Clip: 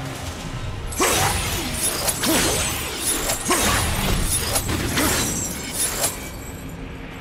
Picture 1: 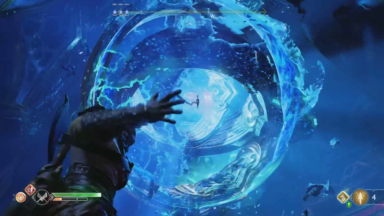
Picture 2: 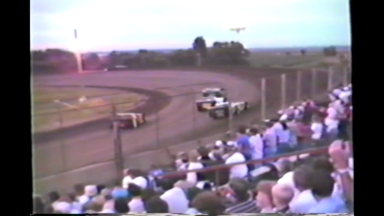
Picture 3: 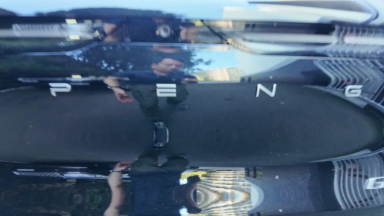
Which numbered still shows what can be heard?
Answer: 1